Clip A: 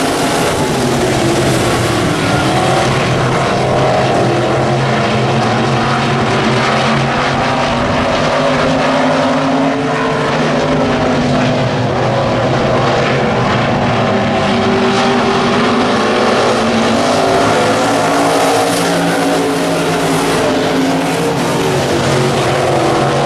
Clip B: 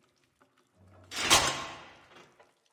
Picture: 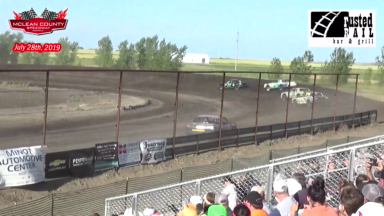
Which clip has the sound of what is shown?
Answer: A